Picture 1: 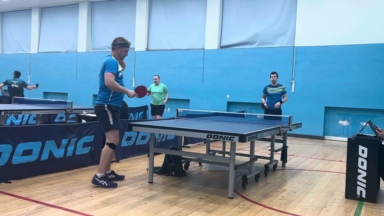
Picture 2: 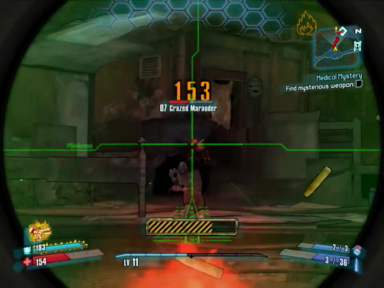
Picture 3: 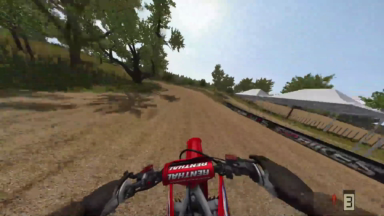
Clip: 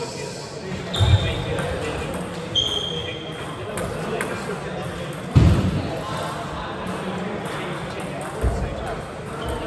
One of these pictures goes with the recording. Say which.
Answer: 1